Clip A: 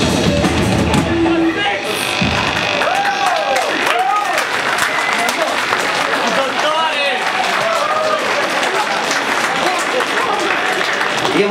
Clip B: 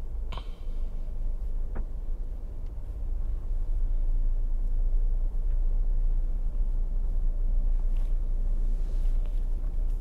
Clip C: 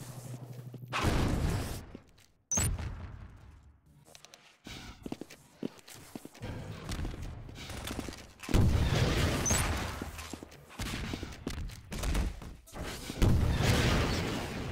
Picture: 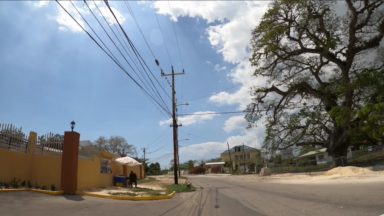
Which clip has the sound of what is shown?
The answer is B